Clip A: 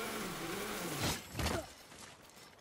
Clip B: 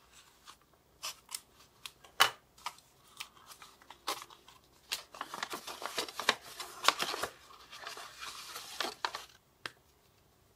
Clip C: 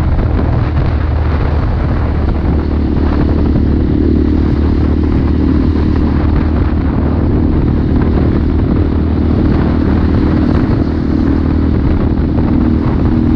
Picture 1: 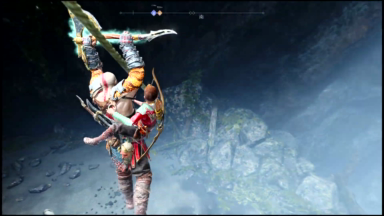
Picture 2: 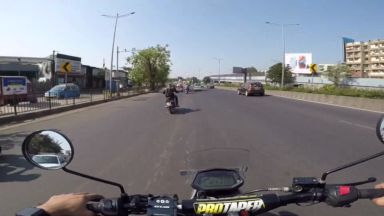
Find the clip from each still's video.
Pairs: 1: A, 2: C